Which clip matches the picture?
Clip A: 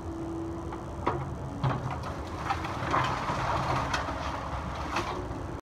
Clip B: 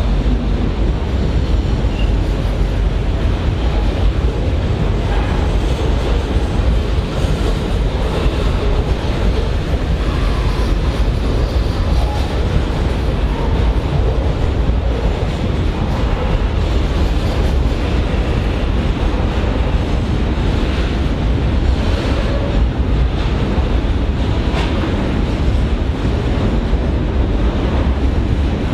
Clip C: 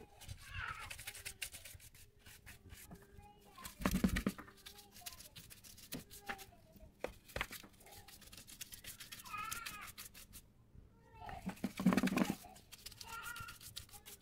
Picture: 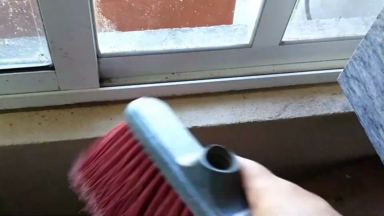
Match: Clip C